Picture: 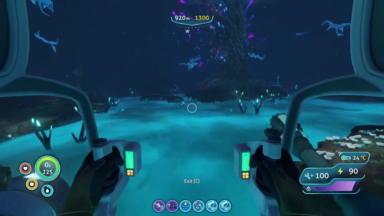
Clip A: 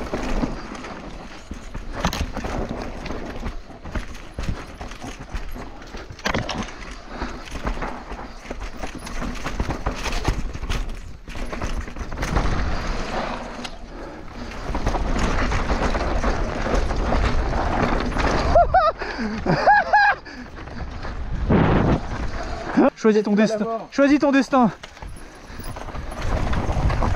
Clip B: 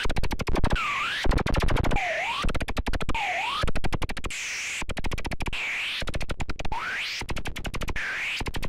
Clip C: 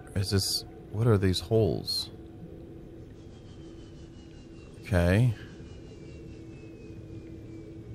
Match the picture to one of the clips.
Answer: C